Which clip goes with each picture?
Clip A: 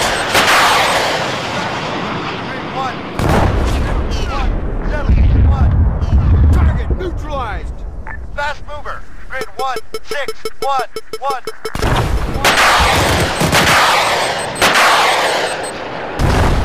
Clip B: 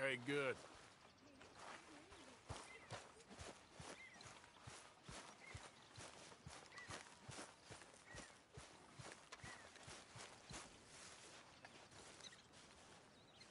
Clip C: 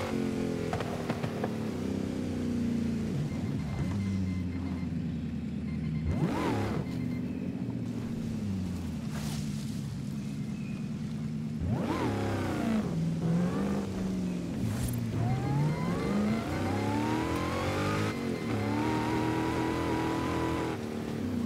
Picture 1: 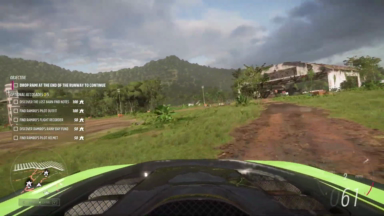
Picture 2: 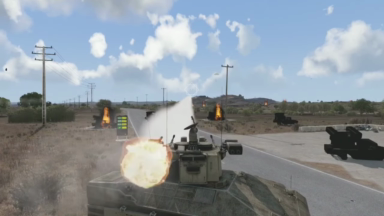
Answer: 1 C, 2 A